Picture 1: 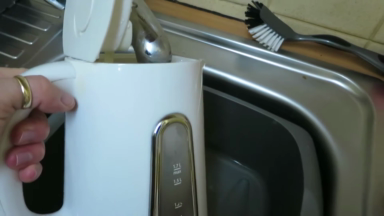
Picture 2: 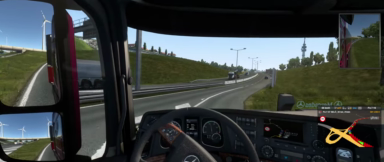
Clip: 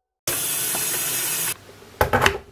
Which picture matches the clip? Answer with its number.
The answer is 1